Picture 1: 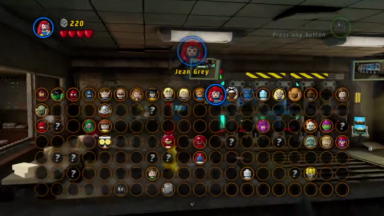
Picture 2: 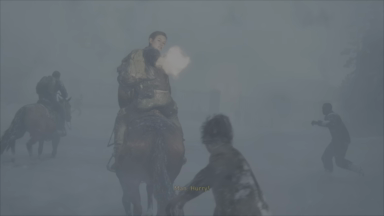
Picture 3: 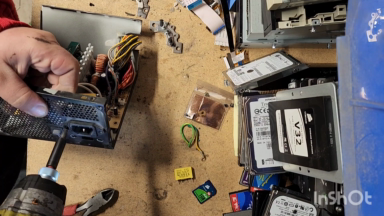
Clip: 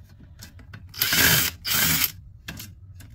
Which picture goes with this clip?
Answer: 3